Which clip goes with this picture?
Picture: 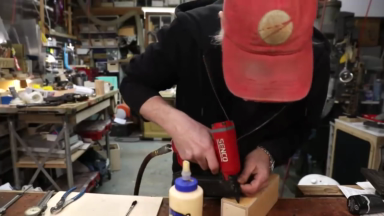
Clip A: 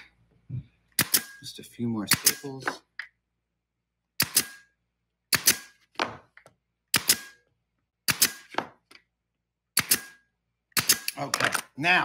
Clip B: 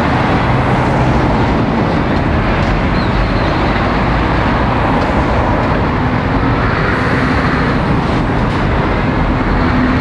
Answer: A